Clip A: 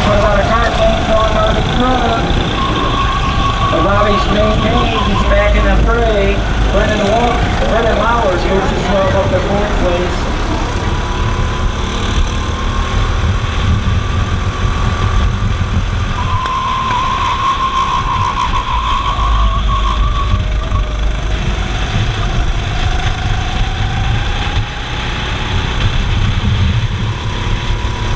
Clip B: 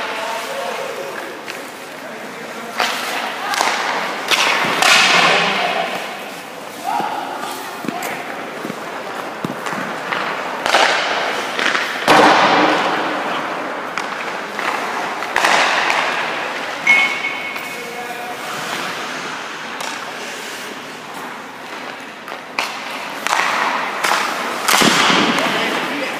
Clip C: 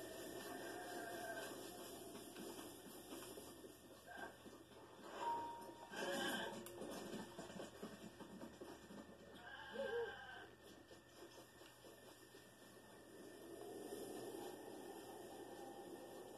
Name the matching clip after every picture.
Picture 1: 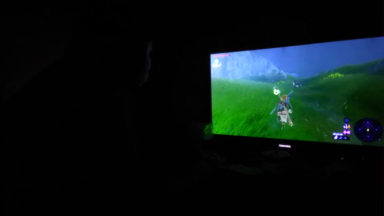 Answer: C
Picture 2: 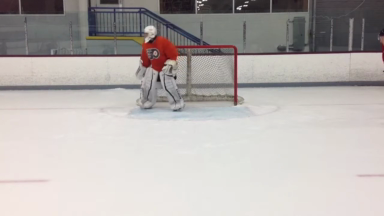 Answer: B